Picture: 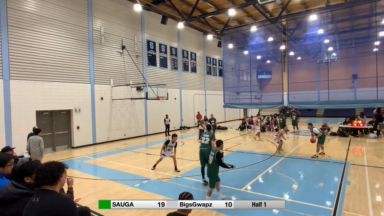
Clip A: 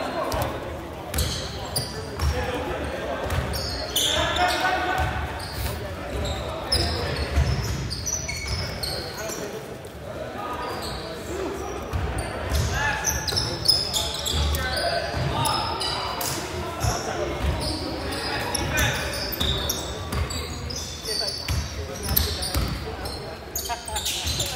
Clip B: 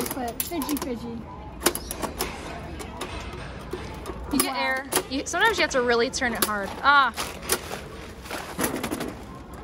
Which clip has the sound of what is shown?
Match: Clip A